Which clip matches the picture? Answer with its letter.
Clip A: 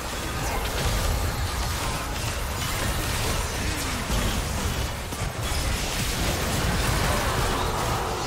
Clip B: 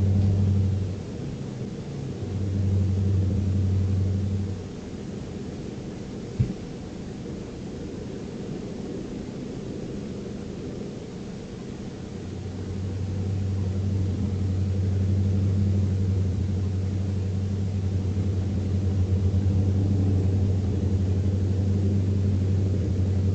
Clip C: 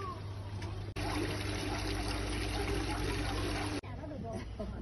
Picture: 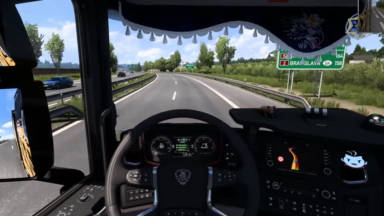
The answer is B